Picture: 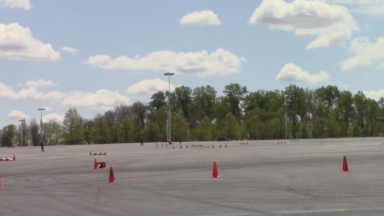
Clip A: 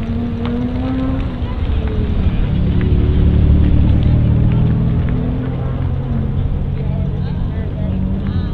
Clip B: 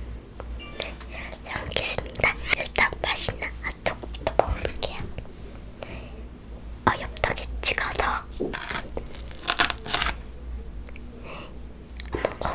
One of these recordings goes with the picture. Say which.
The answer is A